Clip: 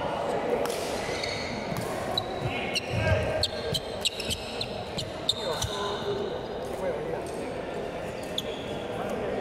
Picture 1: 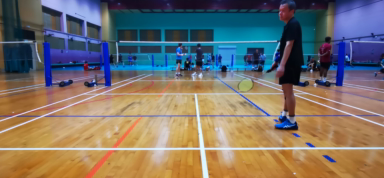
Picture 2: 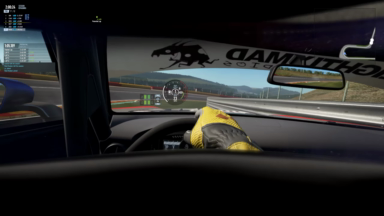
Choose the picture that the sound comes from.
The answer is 1